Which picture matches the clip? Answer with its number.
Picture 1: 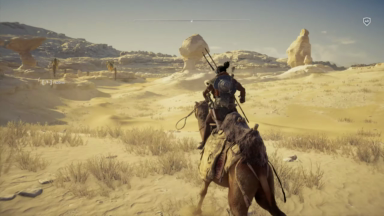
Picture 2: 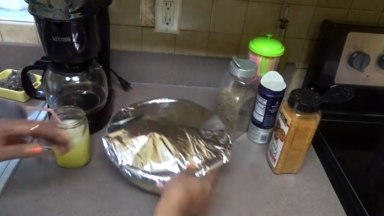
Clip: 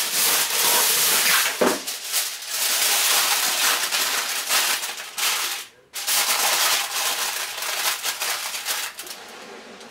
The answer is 2